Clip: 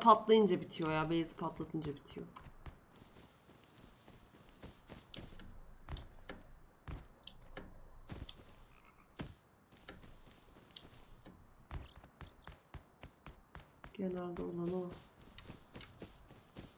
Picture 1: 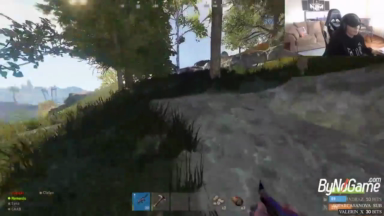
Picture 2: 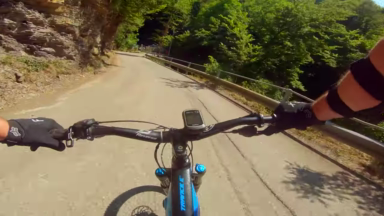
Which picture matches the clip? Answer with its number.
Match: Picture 1